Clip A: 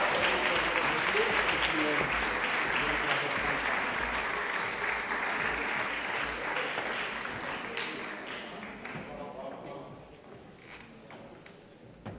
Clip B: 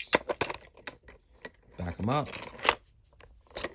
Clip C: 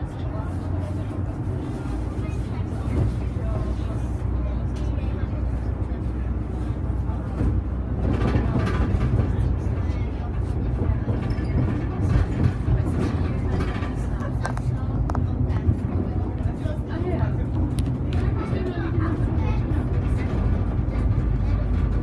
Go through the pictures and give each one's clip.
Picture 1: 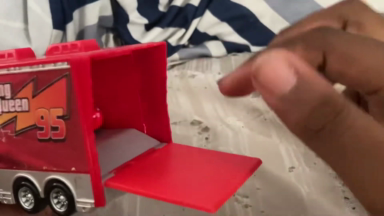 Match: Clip B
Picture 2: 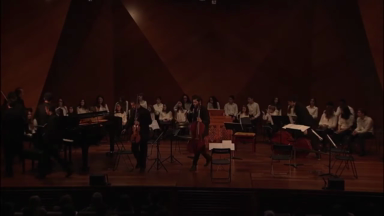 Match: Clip A